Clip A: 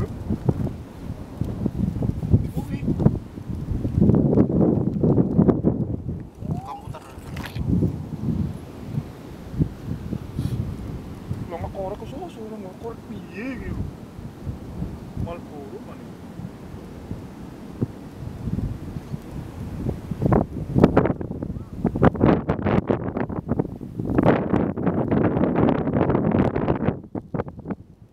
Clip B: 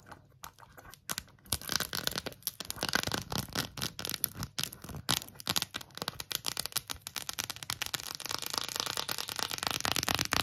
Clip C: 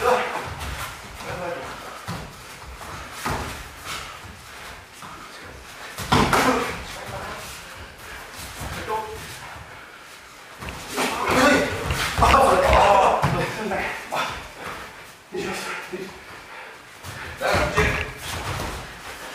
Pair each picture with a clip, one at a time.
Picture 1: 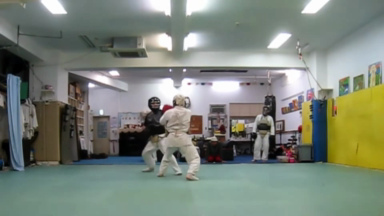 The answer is C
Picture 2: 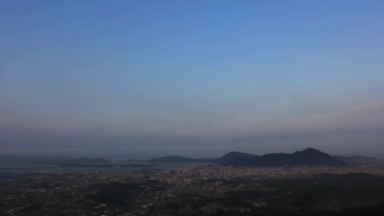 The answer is A